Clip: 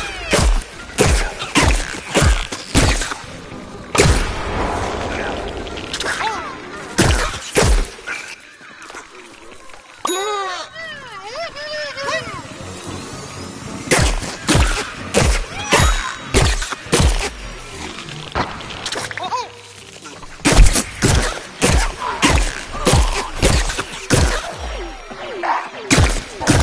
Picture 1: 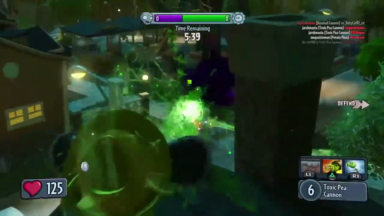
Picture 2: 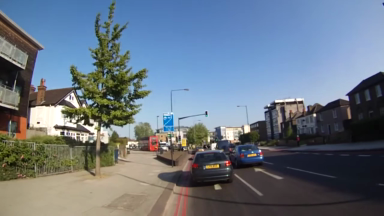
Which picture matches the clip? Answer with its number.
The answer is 1